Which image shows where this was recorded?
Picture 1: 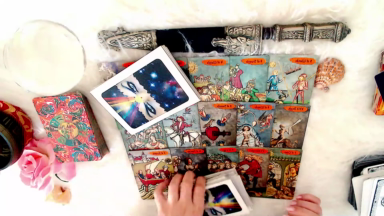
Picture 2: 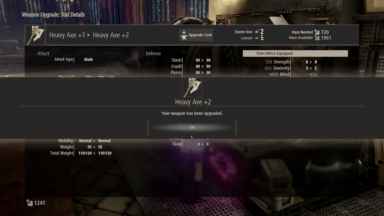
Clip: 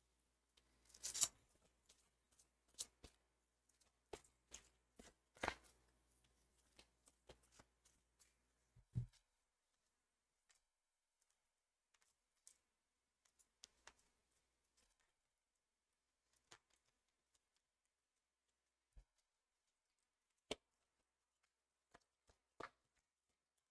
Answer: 1